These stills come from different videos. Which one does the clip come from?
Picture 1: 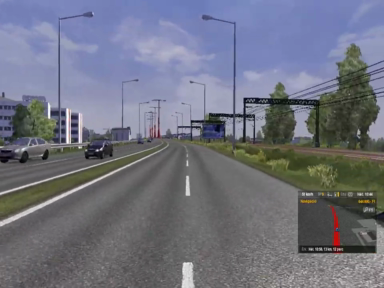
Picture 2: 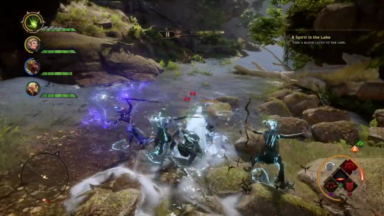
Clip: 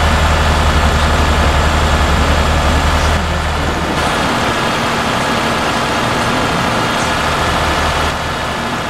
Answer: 1